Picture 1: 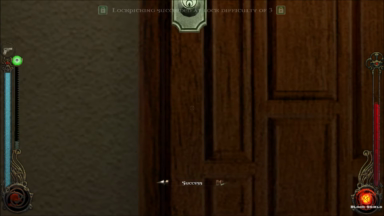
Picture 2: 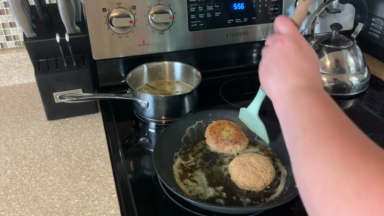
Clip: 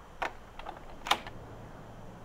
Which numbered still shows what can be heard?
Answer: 1